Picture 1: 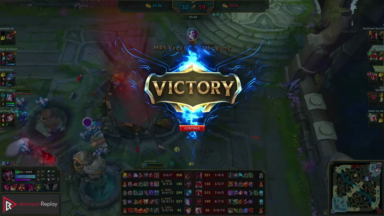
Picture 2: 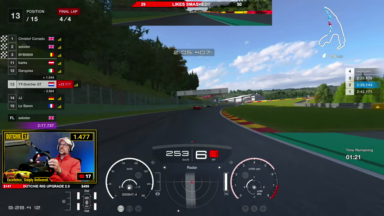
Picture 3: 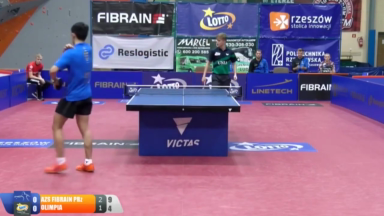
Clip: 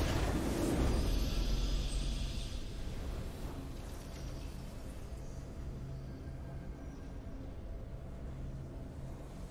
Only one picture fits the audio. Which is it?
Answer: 1